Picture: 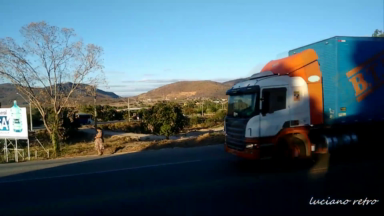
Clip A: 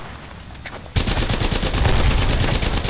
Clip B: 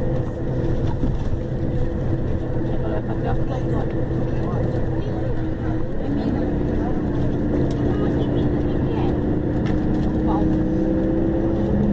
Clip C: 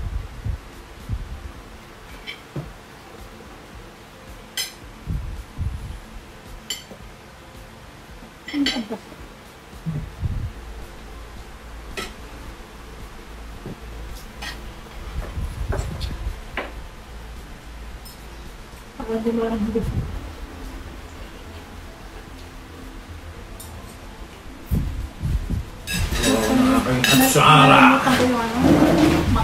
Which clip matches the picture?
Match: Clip B